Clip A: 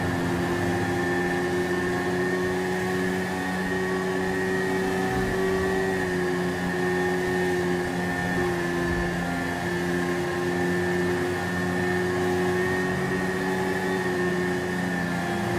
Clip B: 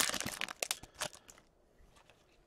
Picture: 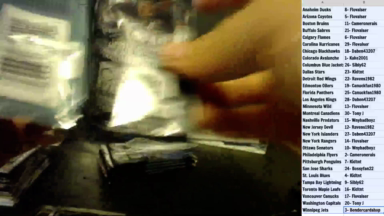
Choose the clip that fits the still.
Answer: B